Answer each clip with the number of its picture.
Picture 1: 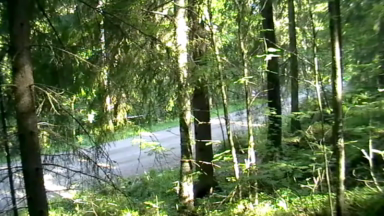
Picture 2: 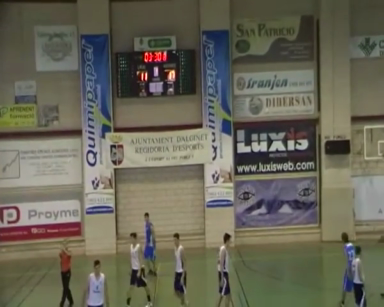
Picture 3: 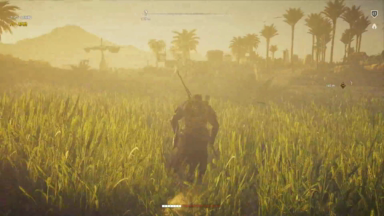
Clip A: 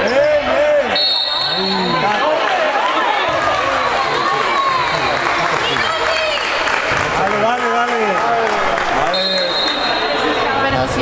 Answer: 2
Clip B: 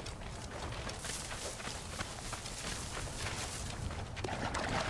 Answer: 3